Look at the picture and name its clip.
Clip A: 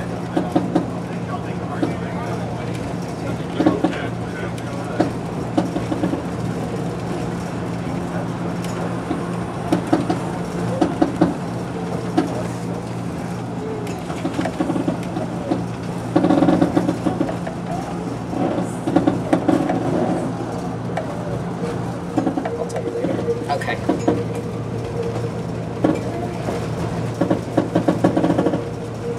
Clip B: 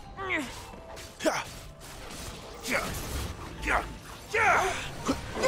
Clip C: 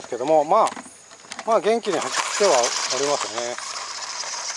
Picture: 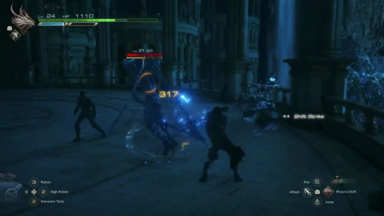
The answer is B